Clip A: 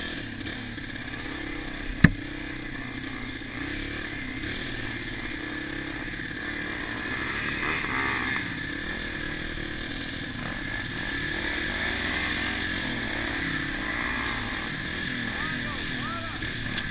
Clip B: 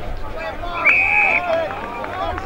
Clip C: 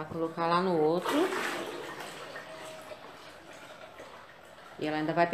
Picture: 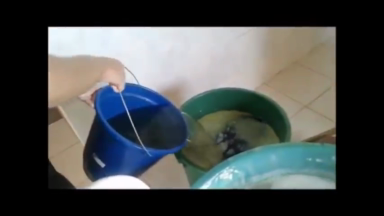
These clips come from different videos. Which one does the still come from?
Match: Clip C